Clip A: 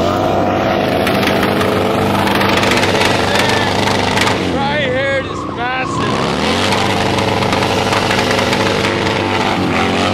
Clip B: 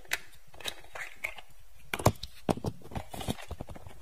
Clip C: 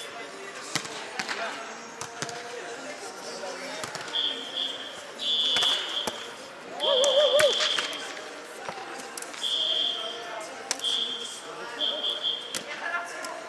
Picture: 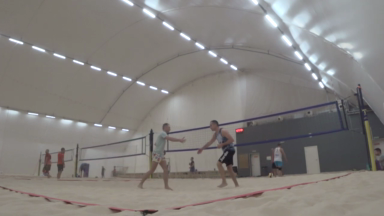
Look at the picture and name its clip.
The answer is C